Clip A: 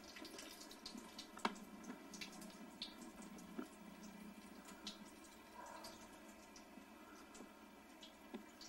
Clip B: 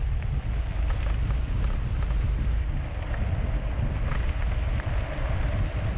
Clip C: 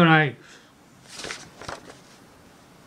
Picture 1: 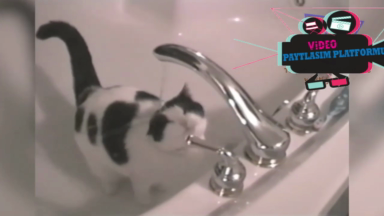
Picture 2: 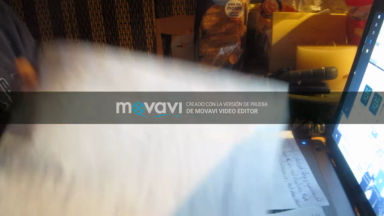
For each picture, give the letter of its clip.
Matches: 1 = A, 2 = C